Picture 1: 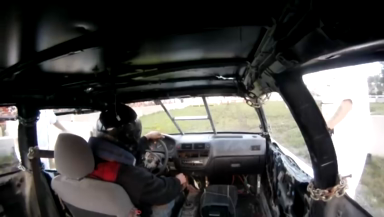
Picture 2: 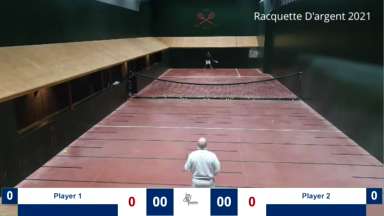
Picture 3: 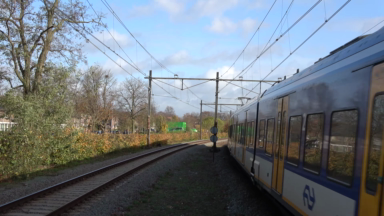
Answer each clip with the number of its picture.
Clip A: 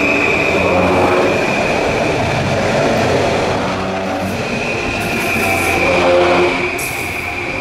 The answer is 3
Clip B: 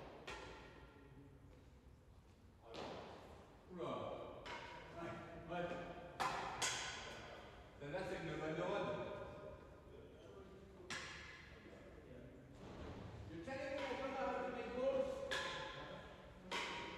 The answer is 2